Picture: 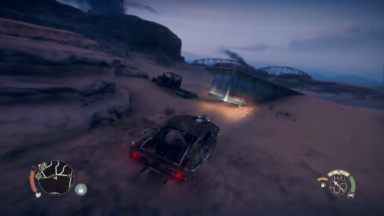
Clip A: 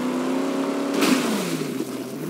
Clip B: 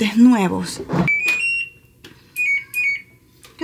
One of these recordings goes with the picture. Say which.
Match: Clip A